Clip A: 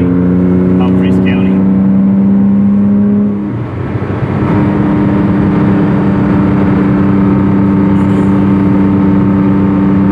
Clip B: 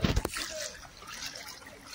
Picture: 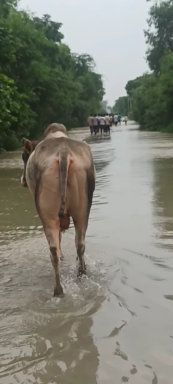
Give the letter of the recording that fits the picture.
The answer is B